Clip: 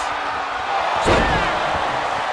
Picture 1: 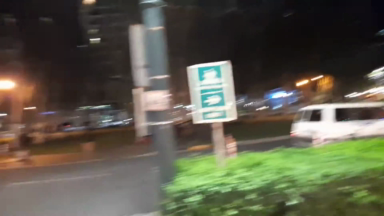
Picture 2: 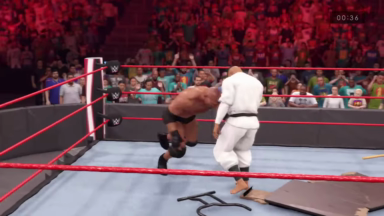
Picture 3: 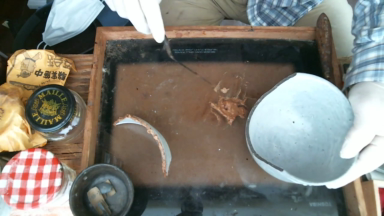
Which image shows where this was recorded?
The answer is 2